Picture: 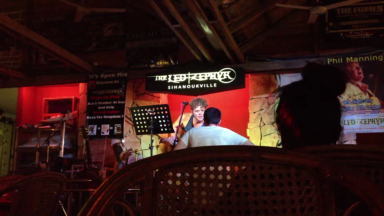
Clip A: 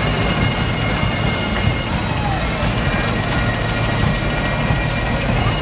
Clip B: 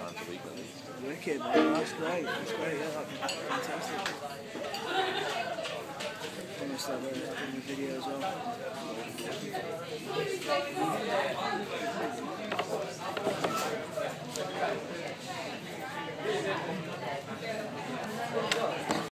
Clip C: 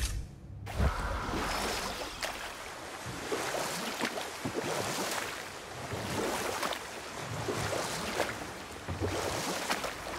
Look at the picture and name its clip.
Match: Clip B